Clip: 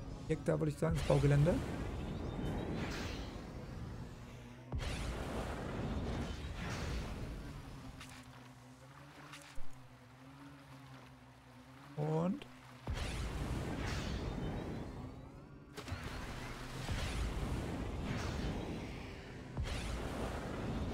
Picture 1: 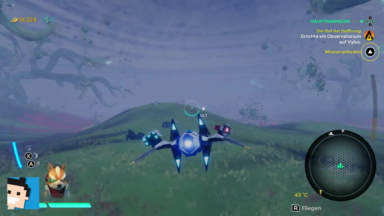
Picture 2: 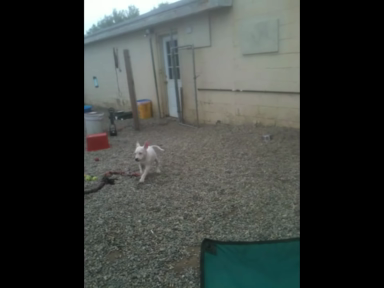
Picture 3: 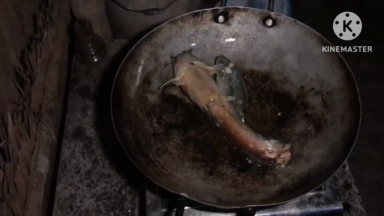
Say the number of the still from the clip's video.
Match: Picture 1